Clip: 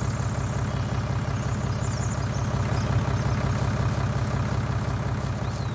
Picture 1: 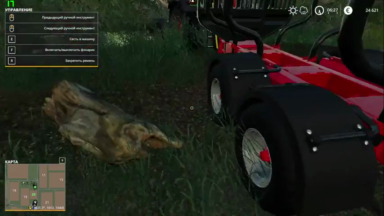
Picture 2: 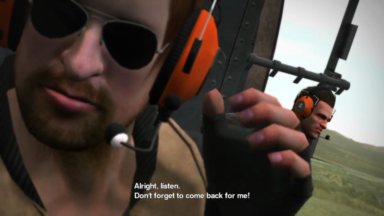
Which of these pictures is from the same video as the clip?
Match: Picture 1